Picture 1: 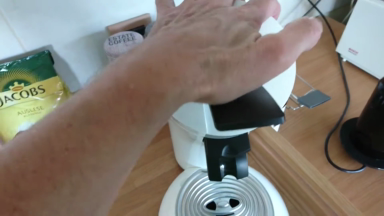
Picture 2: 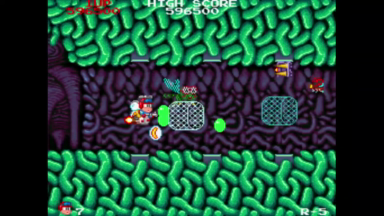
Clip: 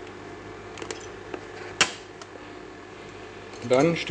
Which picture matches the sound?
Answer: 1